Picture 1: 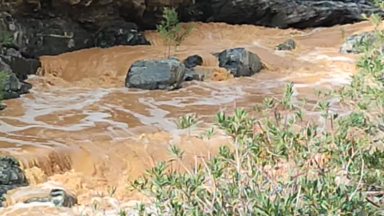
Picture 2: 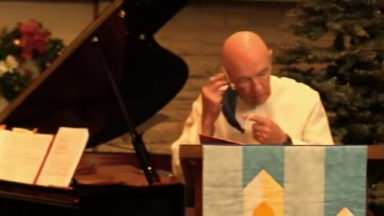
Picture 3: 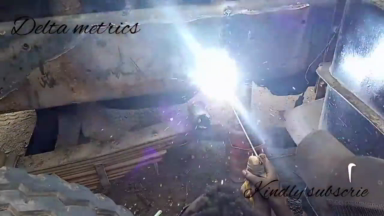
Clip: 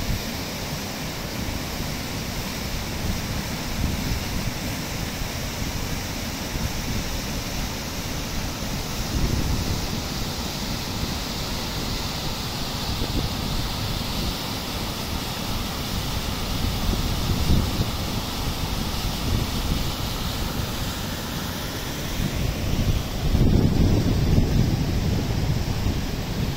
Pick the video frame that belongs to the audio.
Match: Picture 1